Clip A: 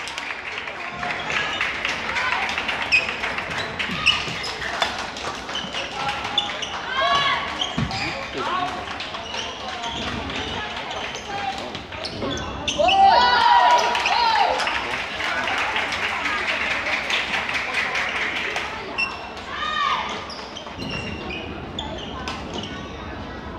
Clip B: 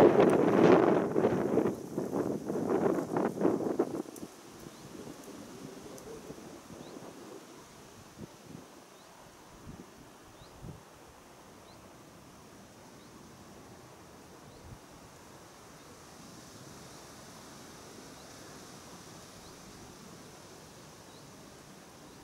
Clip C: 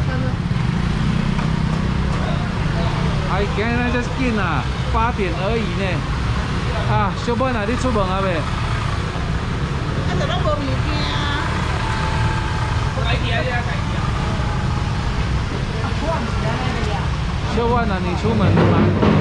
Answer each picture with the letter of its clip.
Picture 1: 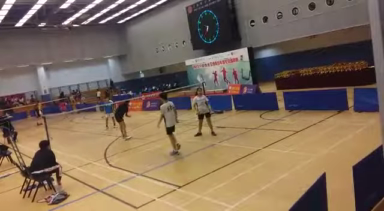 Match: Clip A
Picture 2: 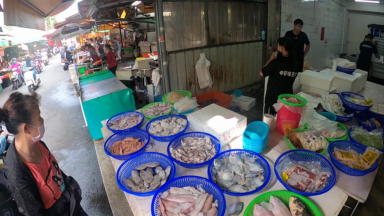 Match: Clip C